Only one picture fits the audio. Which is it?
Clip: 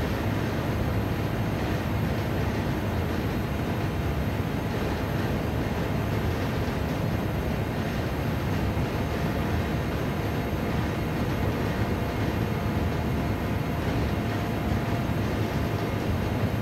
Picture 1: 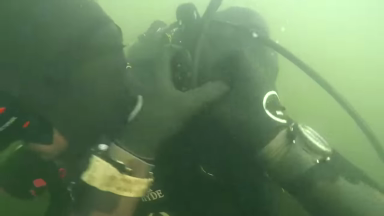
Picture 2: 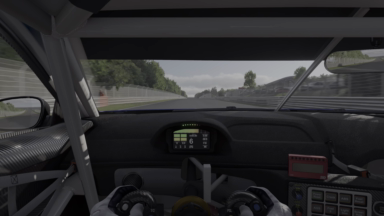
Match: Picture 2